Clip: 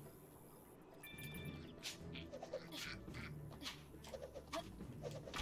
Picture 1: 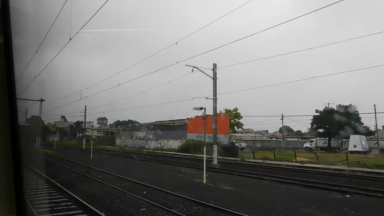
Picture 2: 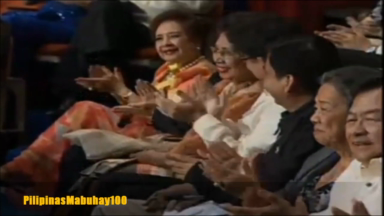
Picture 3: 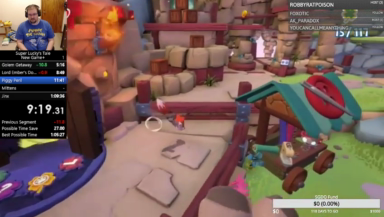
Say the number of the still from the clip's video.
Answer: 3